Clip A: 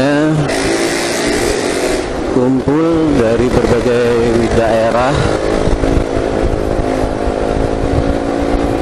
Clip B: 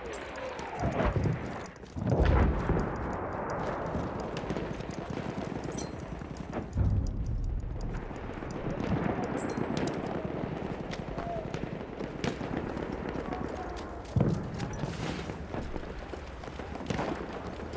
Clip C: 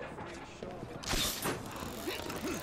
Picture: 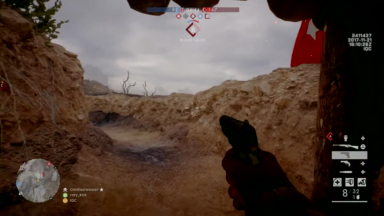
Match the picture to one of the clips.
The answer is B